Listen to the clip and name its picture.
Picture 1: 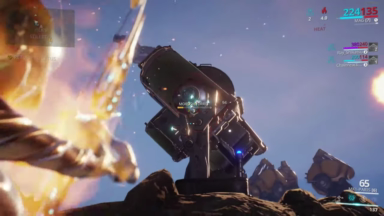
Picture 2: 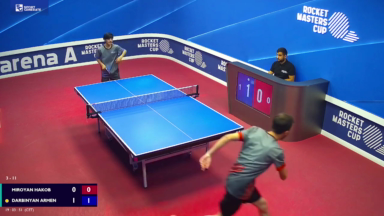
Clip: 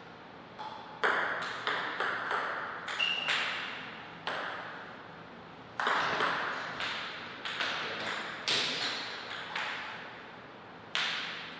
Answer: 2